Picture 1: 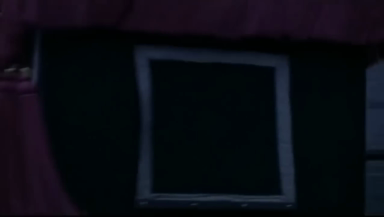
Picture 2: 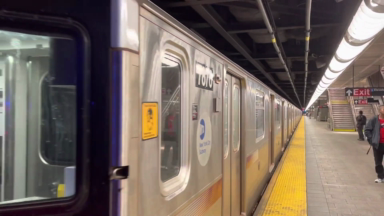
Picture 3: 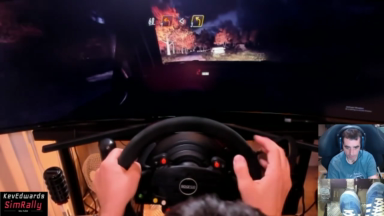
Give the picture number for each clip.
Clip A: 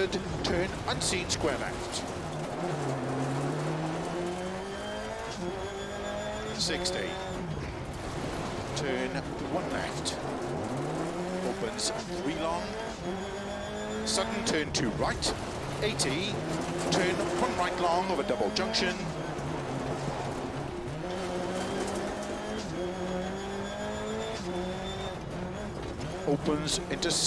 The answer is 3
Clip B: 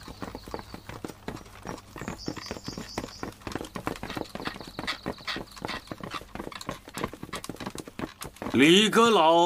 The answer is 1